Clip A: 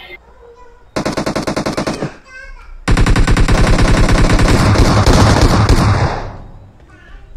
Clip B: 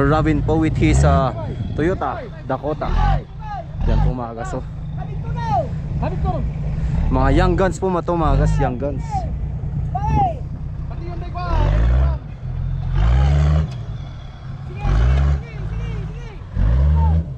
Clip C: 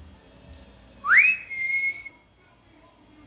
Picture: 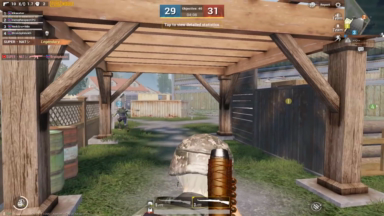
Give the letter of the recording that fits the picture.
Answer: A